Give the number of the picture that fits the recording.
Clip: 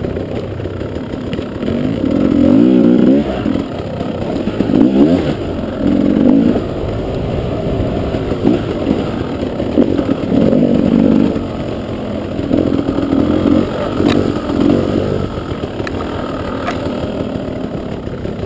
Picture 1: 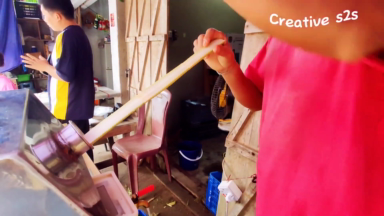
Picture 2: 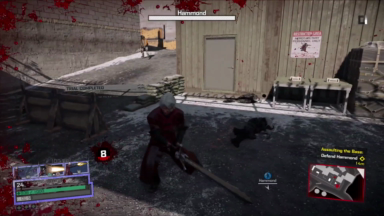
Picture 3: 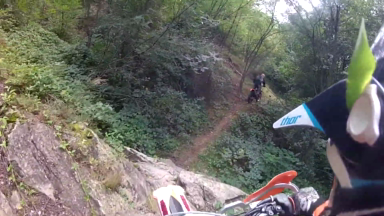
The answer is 3